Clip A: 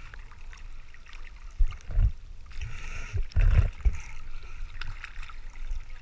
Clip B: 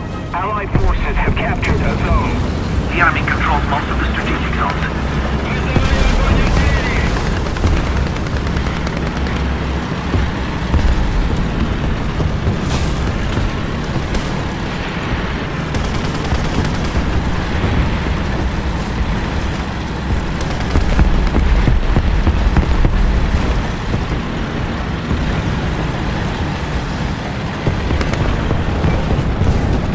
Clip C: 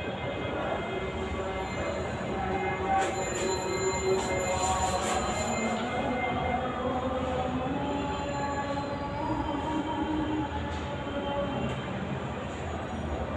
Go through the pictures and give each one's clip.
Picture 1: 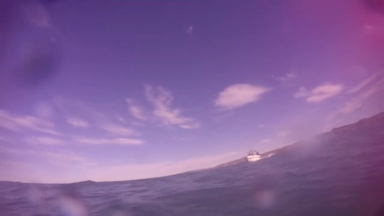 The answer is A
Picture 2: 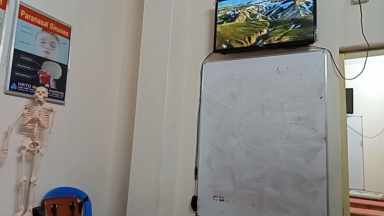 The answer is C